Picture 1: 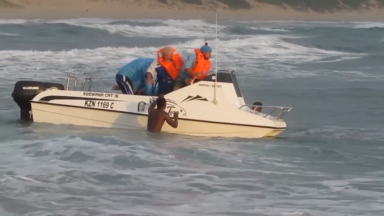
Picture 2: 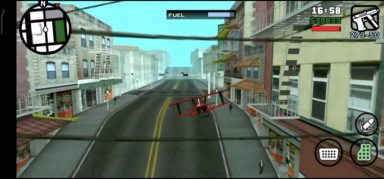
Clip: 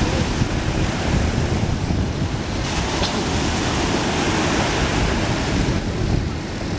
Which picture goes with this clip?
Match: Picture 1